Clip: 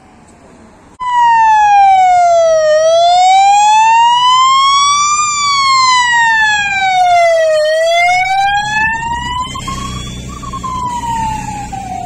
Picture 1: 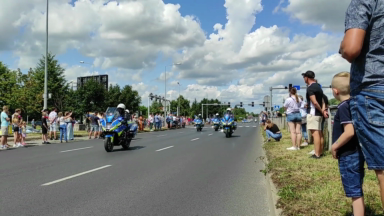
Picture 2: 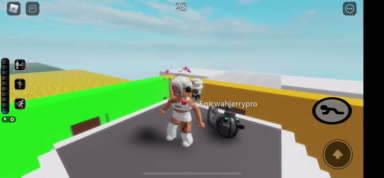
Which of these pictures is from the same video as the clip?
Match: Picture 1